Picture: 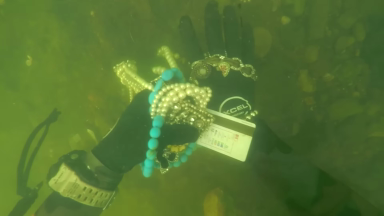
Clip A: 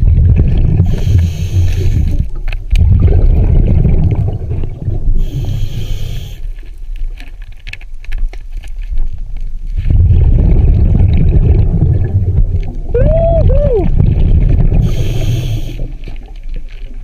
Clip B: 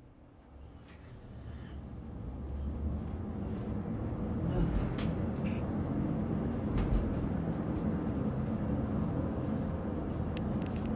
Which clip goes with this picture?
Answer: A